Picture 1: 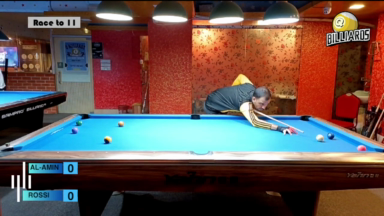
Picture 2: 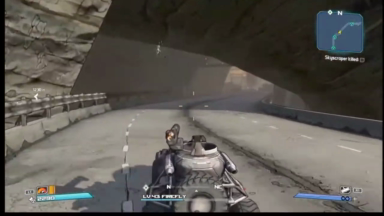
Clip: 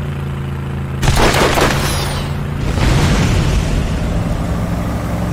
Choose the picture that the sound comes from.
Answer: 2